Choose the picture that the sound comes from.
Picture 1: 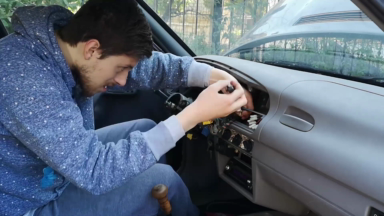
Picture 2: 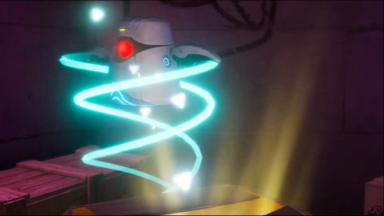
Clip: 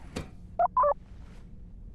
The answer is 2